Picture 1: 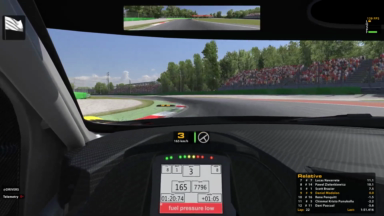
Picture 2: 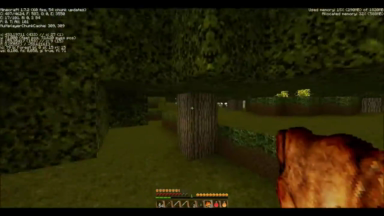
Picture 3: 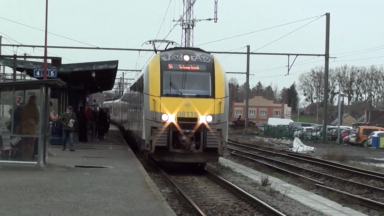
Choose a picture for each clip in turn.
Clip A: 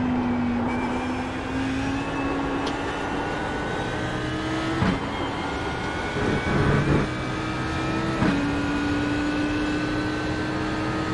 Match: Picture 1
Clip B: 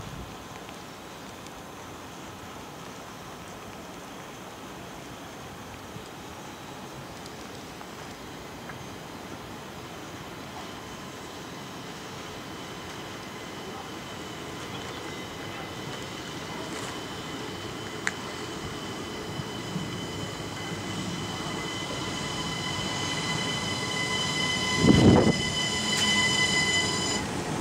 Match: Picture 3